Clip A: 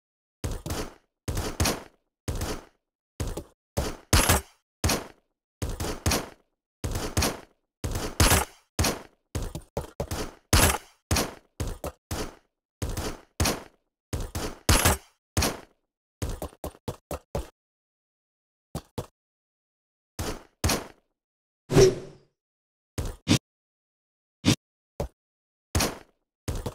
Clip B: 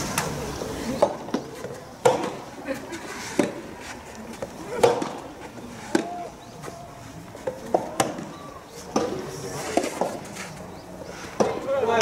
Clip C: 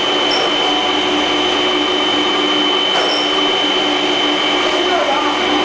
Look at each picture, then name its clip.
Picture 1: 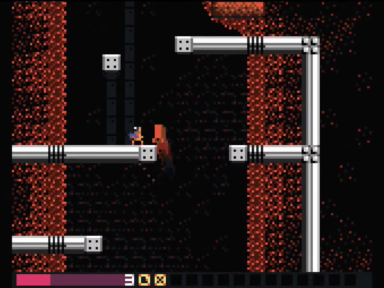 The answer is A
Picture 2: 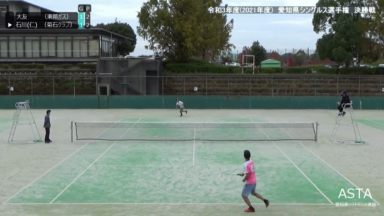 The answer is B